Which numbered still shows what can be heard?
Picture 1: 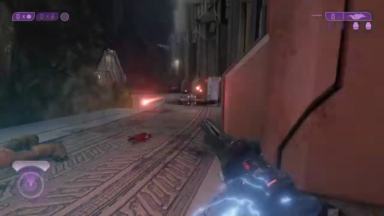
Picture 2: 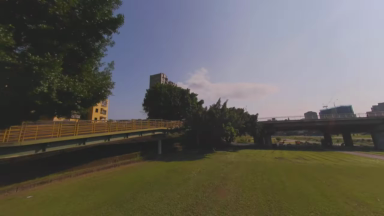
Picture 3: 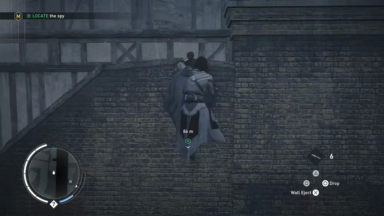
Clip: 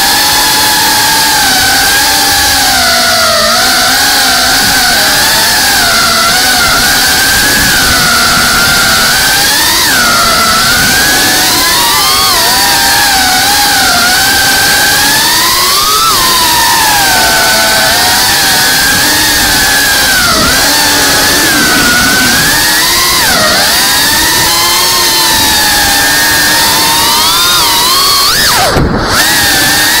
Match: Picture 2